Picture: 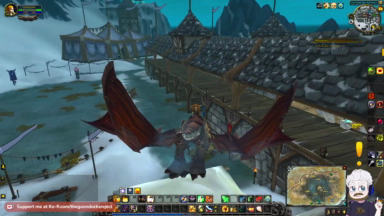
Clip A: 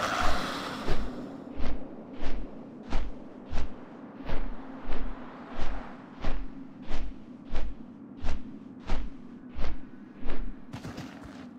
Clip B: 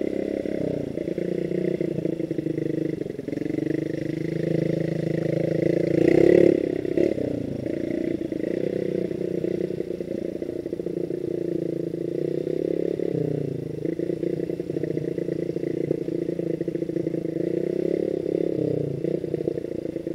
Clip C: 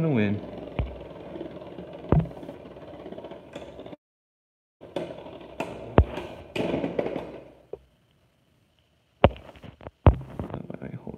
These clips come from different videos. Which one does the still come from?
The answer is A